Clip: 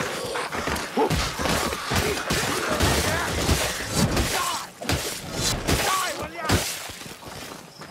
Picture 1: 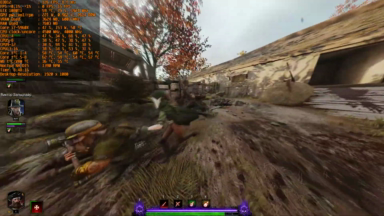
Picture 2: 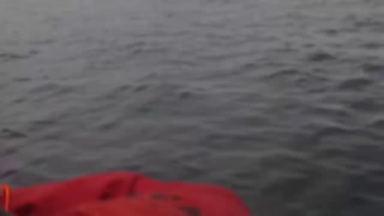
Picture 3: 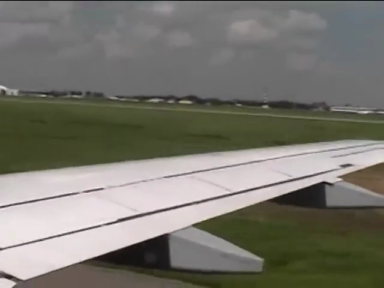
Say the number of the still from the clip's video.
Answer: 1